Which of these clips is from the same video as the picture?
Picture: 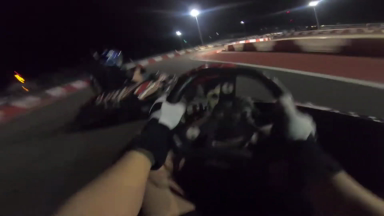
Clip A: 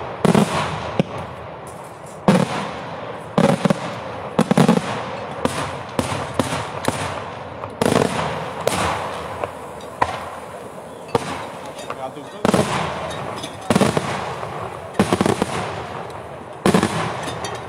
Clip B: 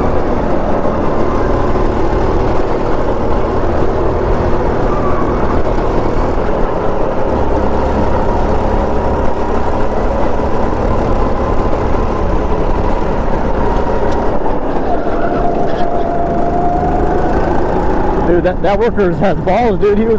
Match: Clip B